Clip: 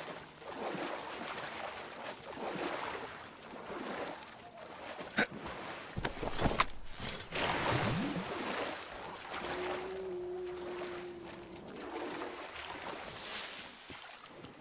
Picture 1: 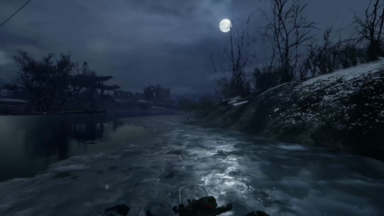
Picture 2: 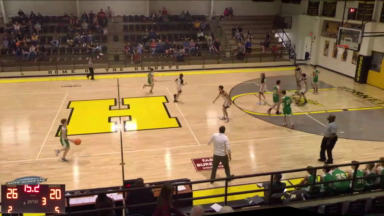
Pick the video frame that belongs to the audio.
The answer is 1